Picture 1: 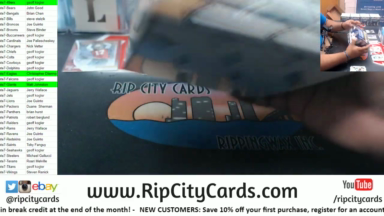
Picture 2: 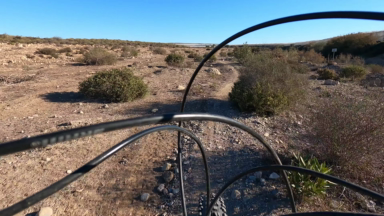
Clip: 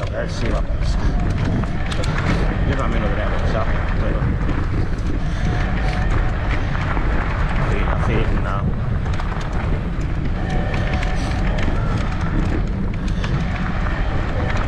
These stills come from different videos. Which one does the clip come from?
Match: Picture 2